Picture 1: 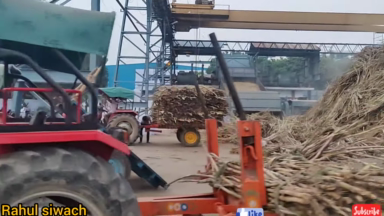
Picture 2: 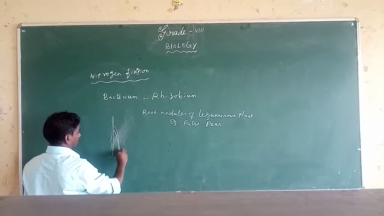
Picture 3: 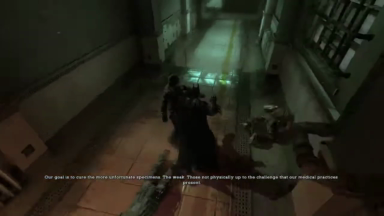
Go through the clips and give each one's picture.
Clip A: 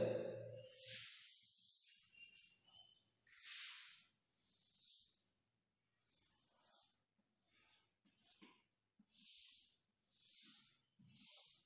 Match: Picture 2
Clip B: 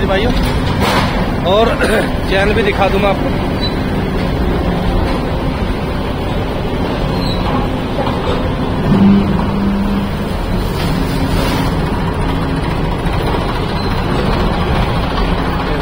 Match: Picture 1